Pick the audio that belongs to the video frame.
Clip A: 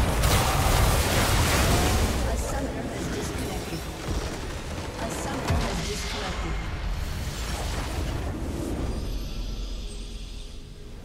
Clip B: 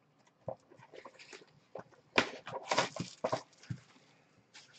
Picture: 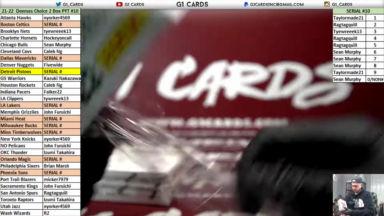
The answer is B